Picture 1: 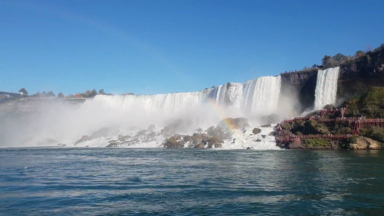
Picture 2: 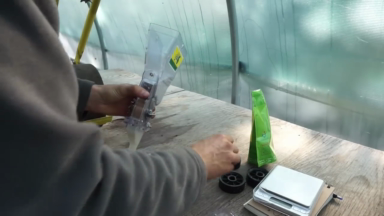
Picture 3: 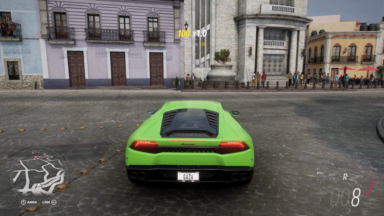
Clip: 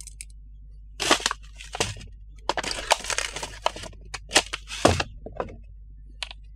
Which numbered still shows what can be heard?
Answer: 2